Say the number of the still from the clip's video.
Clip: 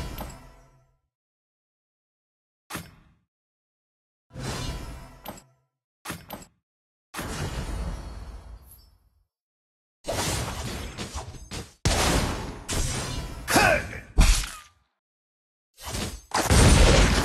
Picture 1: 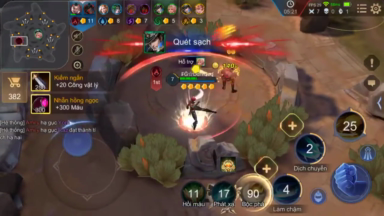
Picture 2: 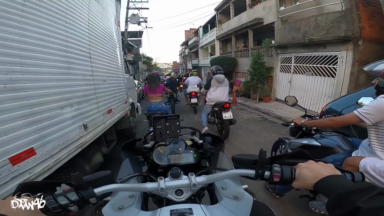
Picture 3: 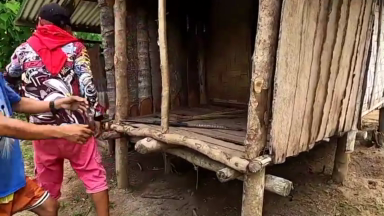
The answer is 1